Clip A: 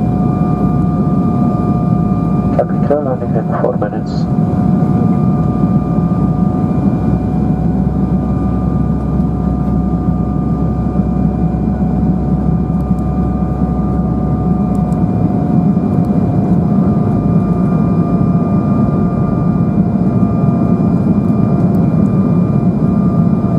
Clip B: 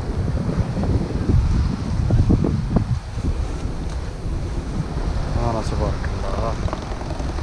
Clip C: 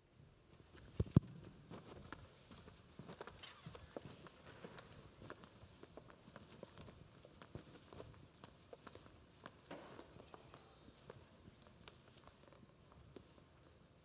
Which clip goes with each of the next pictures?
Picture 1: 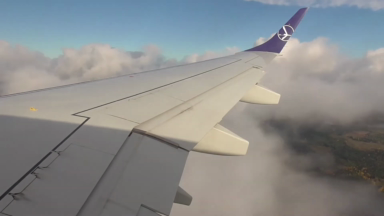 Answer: A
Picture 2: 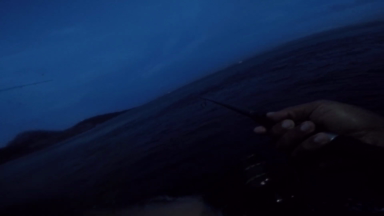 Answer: B